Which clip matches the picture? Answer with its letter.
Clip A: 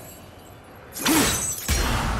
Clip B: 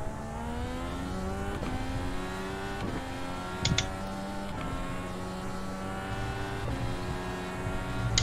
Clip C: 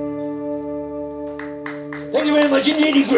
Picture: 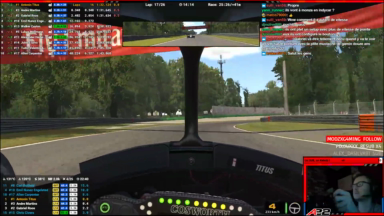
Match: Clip B